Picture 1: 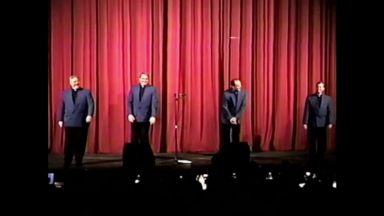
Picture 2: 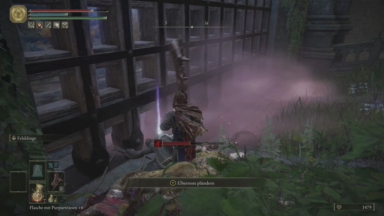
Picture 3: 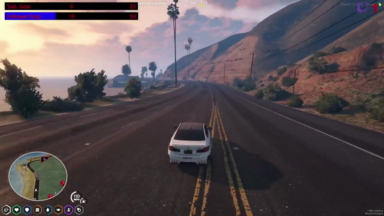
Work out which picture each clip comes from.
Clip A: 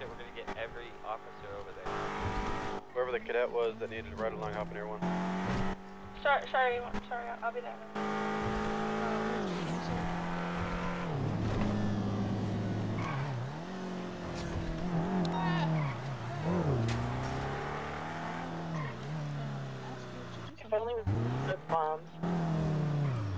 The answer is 3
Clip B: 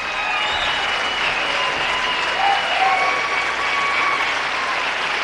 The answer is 1